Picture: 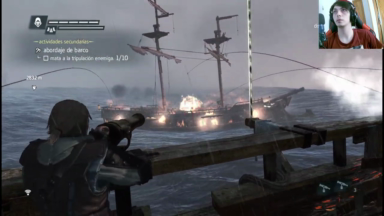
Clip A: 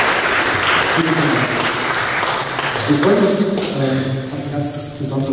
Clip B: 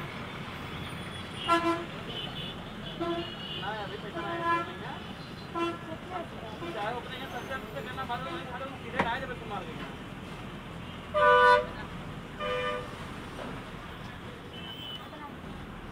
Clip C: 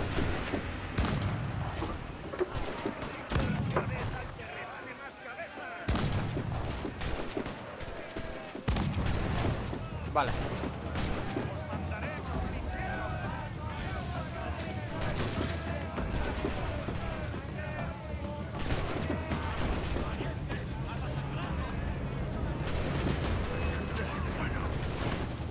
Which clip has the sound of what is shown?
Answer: C